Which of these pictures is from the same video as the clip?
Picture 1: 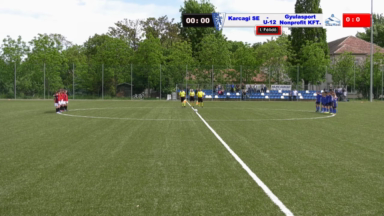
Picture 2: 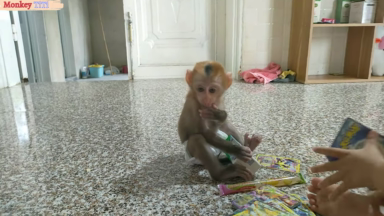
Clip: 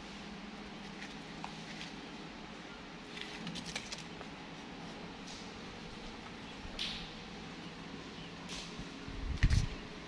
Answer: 2